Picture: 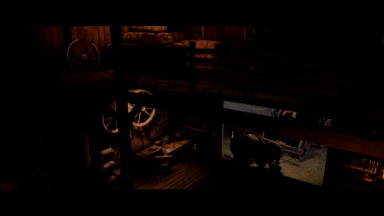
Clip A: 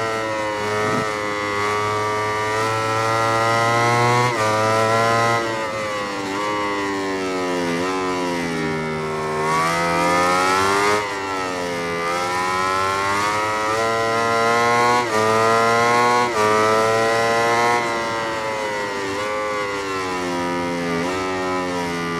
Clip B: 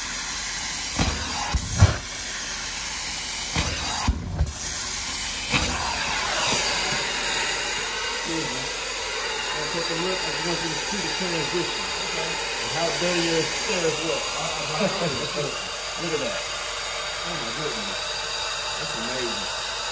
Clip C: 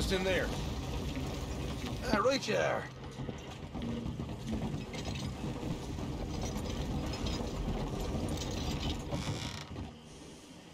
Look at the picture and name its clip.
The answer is C